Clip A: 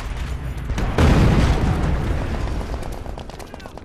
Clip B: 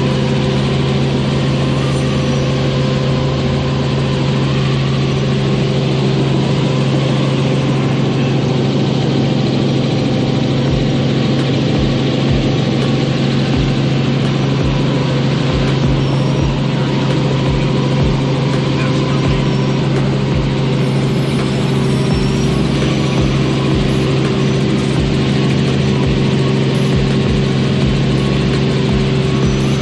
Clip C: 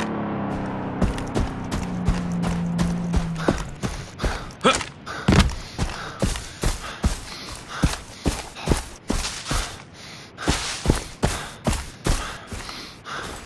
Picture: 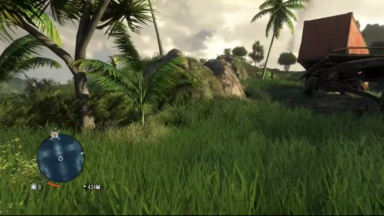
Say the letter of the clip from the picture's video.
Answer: C